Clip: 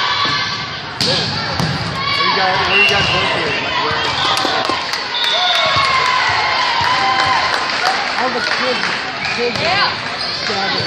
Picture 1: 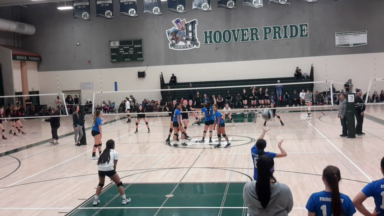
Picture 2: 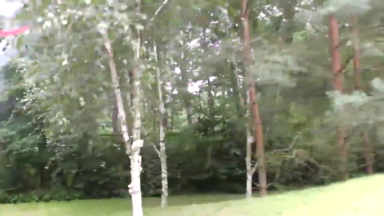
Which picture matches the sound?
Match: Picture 1